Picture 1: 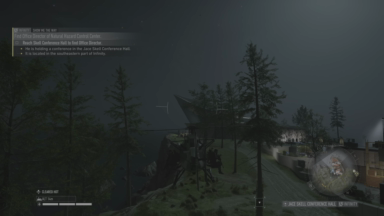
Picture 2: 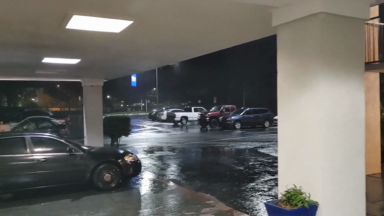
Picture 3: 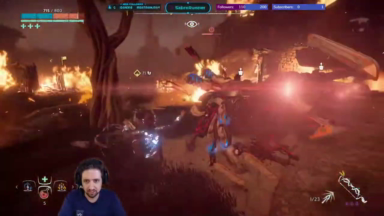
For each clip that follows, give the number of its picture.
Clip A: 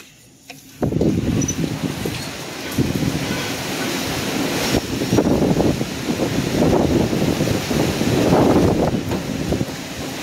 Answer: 2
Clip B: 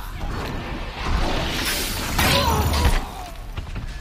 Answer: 3